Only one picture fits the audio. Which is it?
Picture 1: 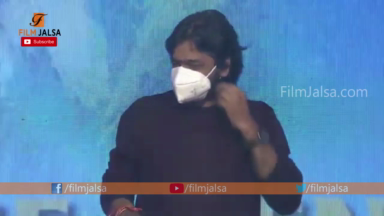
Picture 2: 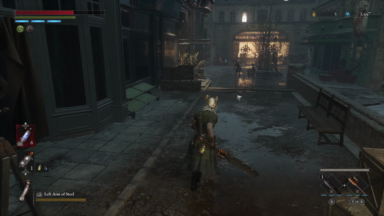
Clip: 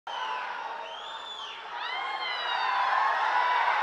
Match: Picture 1